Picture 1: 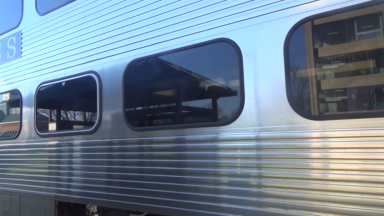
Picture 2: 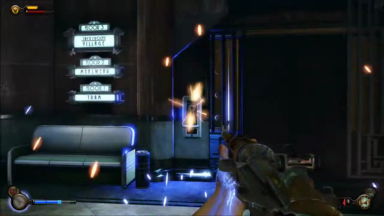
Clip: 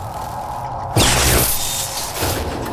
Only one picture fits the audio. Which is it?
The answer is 2